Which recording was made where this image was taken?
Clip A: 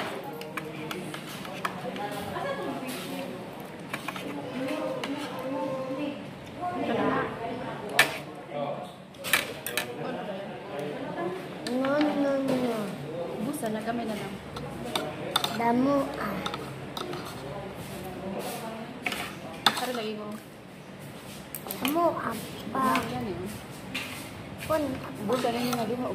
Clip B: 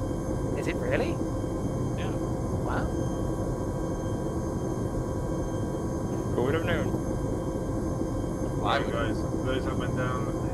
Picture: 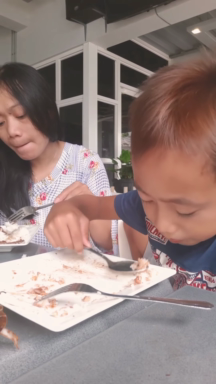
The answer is A